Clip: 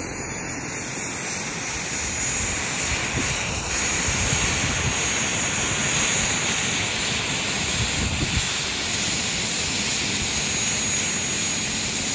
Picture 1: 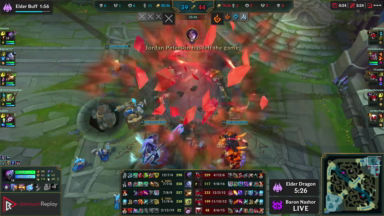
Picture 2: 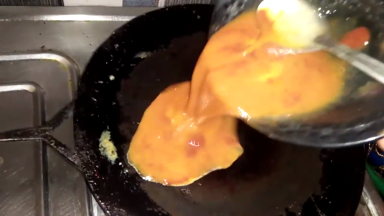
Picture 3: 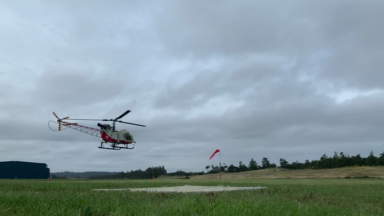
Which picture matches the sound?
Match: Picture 3